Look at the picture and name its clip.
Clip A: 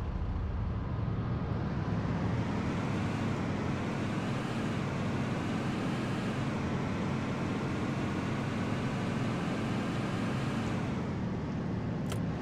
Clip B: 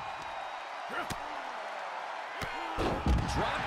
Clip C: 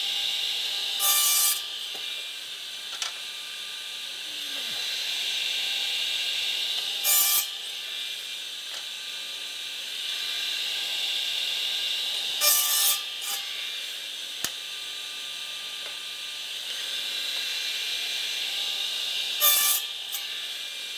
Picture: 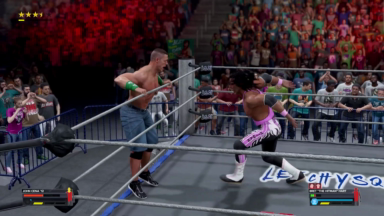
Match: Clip B